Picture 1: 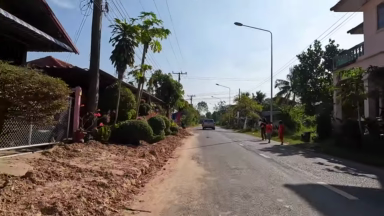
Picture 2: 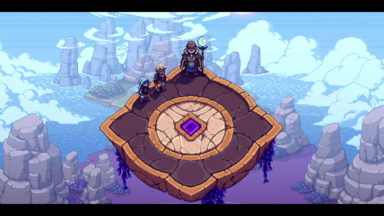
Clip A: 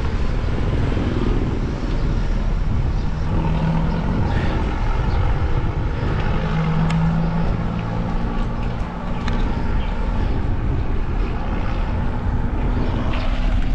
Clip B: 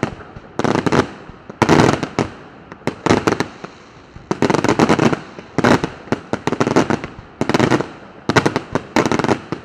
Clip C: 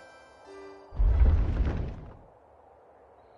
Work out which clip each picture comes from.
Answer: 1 A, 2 C